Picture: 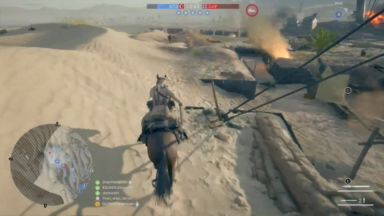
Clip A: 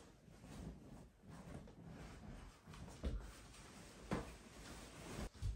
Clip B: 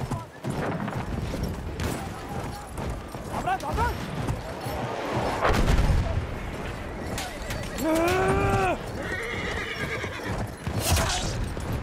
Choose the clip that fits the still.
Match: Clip B